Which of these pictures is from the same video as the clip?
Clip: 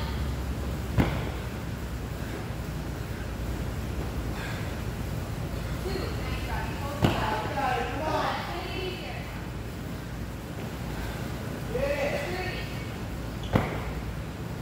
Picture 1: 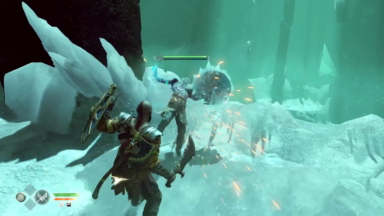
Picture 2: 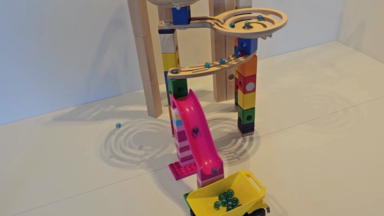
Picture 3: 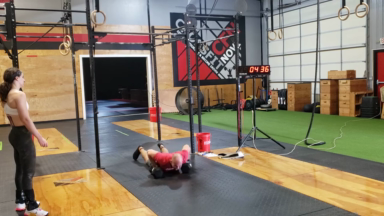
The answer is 3